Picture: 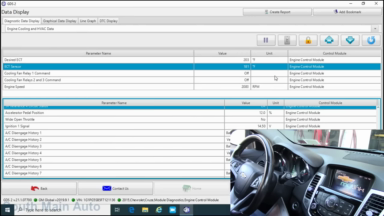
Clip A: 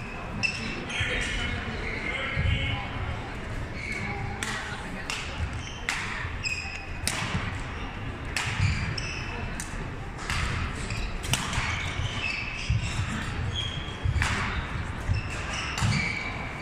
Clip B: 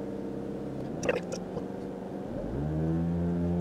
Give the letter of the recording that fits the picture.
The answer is B